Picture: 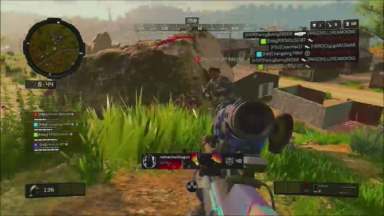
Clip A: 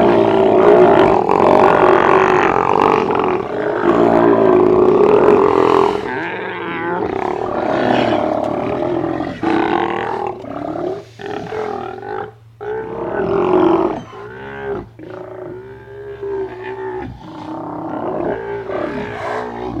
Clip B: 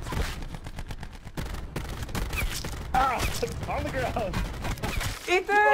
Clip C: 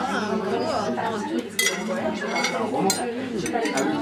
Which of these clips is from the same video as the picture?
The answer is B